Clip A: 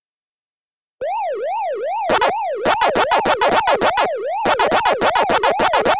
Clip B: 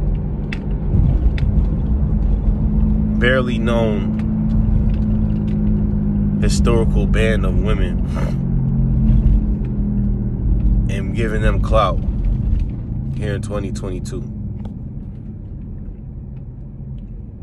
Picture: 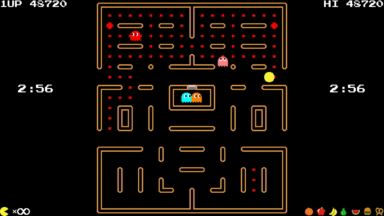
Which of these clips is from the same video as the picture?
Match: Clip A